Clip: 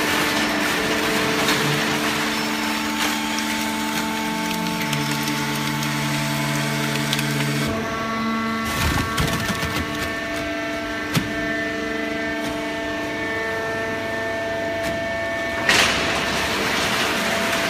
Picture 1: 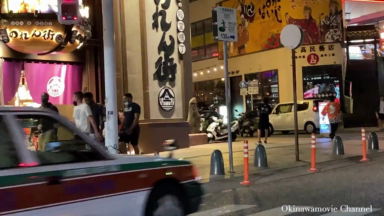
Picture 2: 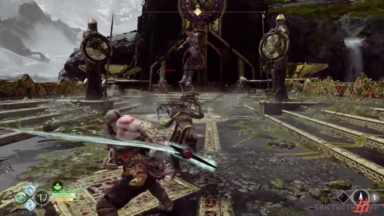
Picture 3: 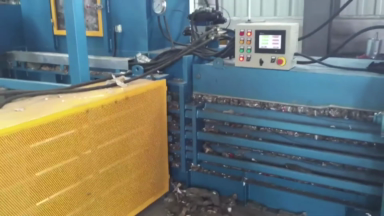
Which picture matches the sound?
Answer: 3